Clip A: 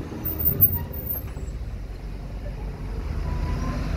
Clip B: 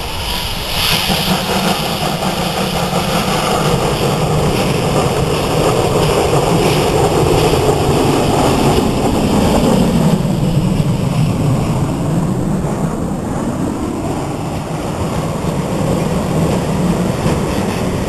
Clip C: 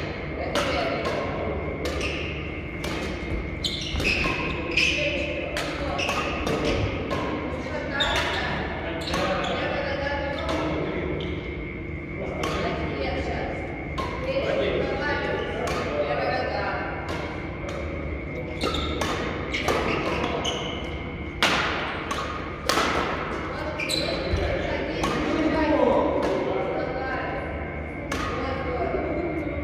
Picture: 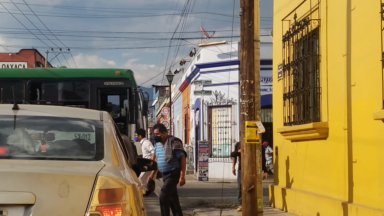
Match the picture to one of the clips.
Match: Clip A